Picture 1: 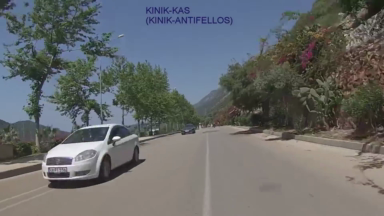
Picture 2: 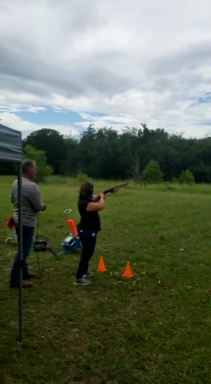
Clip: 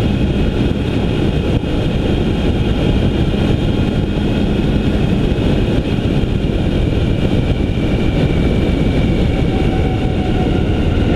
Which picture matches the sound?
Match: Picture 1